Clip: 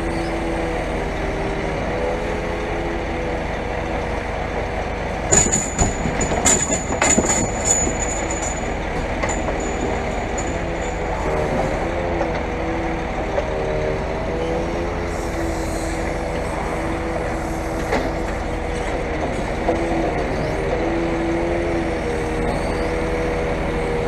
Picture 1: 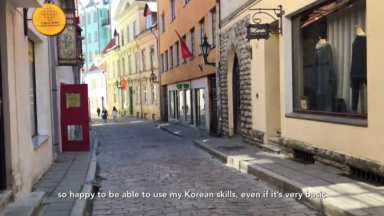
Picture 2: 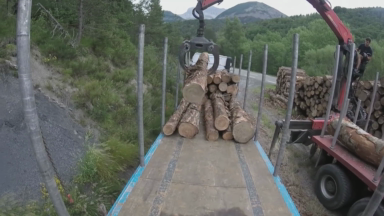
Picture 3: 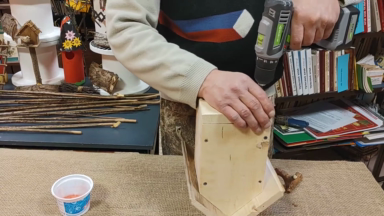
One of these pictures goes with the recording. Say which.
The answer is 2